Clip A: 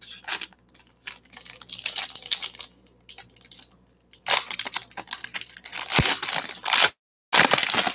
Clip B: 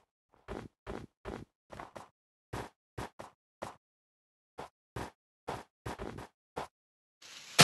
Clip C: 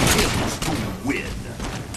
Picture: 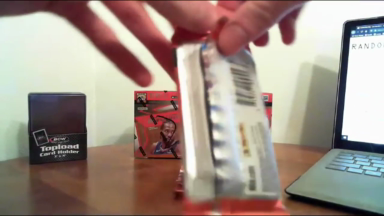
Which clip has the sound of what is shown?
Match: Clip A